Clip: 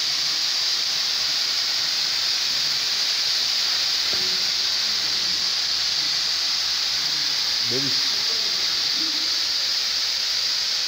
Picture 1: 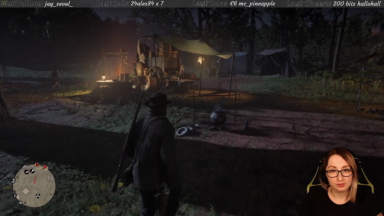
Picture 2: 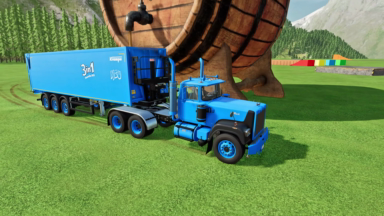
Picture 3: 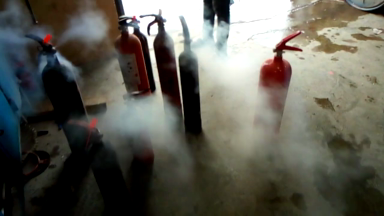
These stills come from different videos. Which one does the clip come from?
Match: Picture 3